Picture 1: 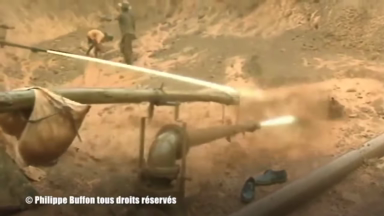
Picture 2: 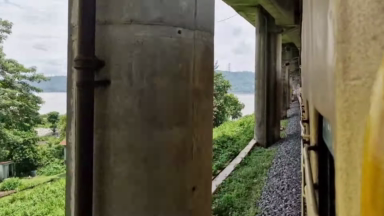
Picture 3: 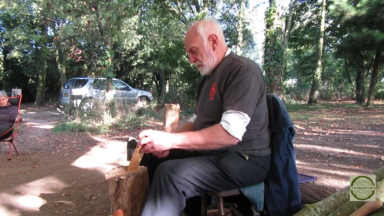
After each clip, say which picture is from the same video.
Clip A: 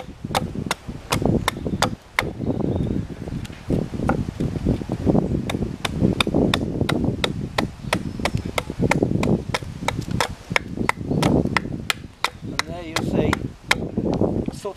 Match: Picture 3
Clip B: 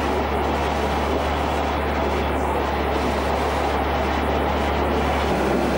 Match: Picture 1